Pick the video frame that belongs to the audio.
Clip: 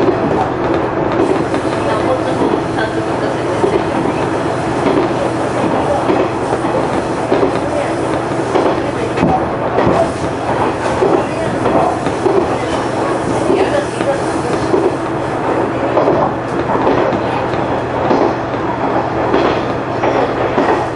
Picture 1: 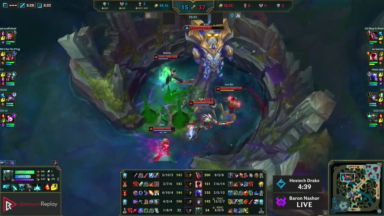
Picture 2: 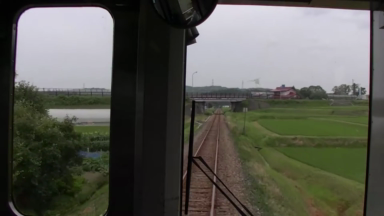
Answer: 2